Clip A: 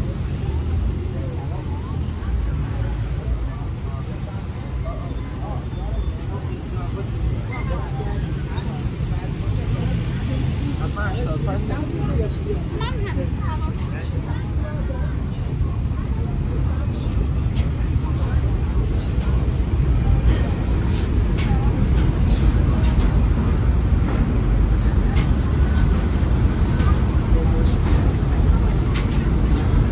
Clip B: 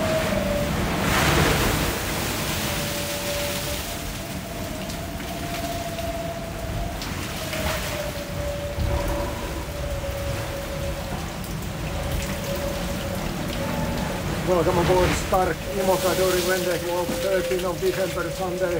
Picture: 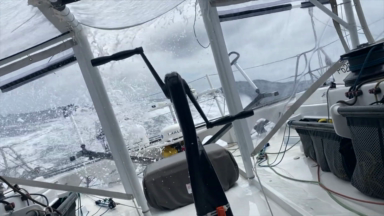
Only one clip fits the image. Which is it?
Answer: B